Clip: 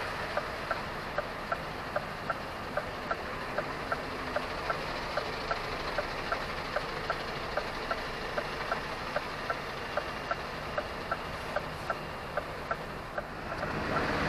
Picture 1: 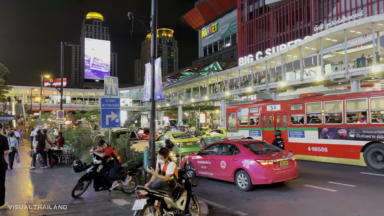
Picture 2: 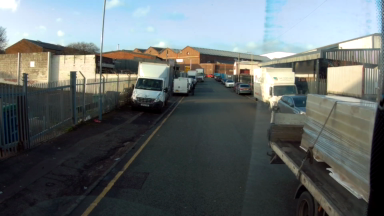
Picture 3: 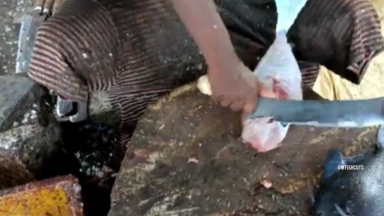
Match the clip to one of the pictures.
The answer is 2